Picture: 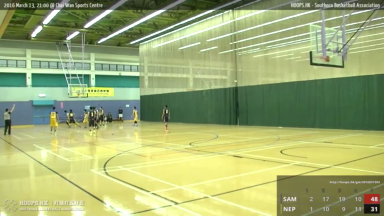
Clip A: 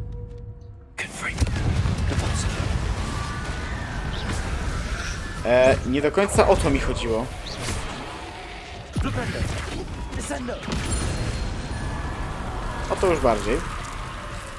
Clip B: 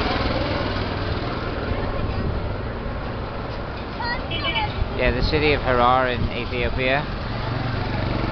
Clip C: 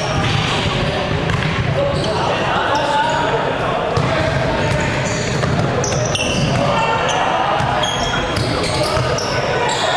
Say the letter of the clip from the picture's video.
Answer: C